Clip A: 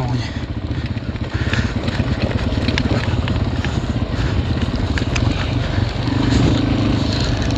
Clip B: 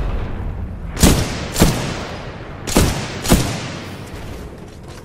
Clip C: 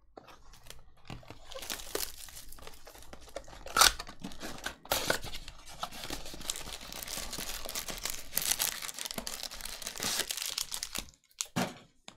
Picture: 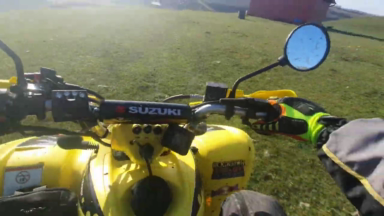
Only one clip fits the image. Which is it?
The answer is A